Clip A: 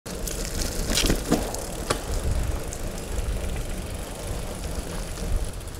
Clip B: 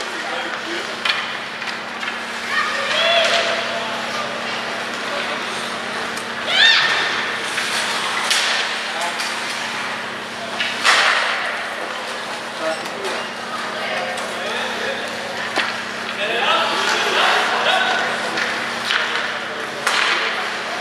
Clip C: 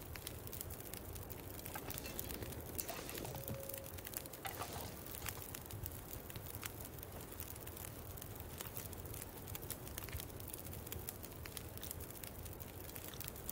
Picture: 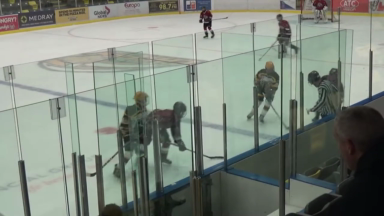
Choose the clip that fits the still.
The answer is B